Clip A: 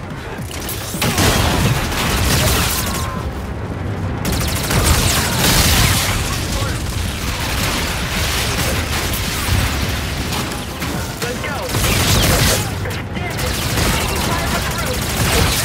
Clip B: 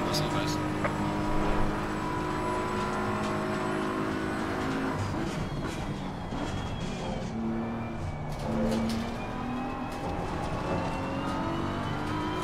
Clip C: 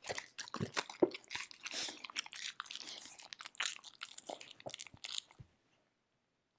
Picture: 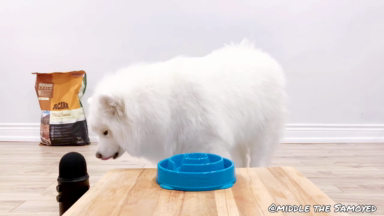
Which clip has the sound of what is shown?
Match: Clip C